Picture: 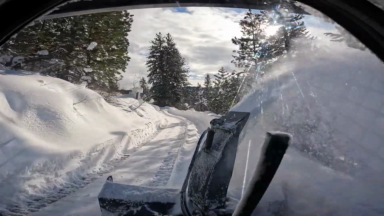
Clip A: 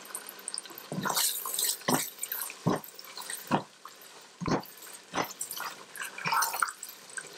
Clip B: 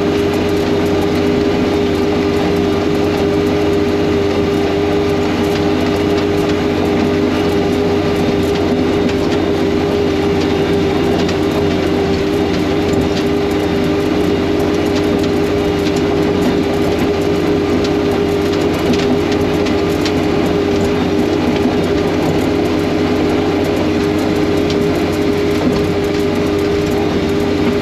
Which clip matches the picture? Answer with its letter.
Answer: B